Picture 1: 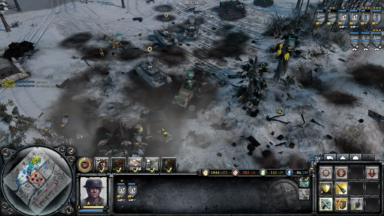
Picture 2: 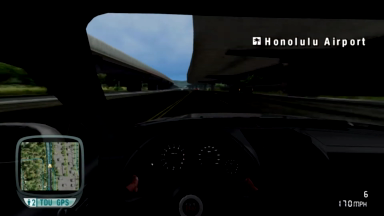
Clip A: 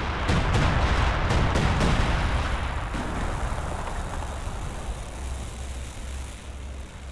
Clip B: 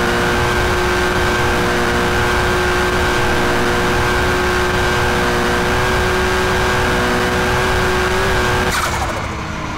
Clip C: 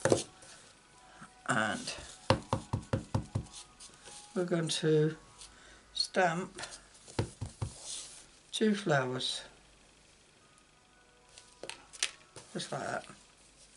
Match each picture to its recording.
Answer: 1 A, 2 B